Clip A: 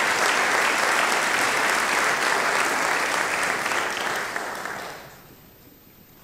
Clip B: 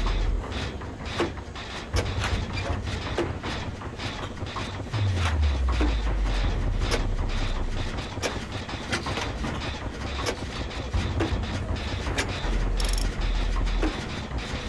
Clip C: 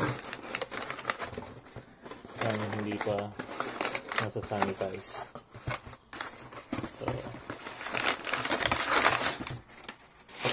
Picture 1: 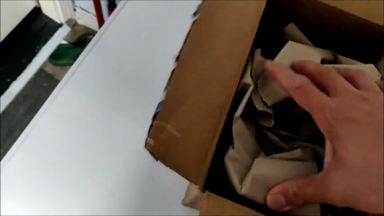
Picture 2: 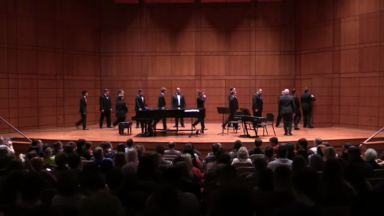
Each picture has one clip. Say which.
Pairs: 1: C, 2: A